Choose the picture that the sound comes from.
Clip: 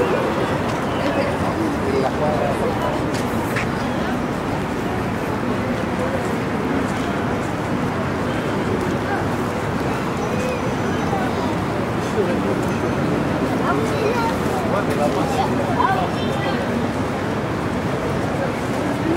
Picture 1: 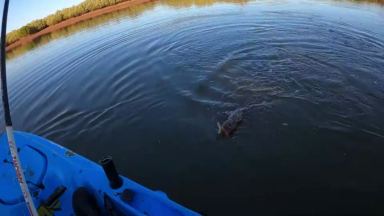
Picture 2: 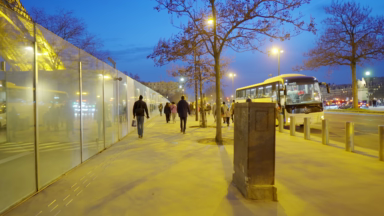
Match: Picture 2